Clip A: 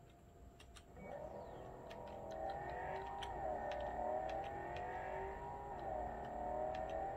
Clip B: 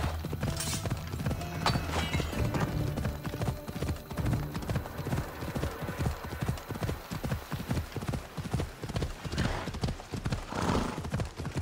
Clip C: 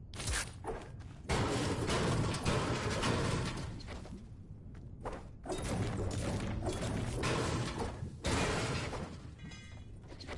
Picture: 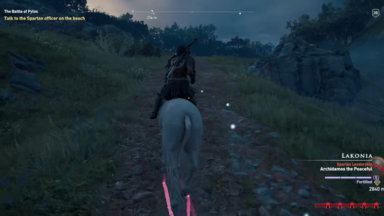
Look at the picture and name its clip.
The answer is B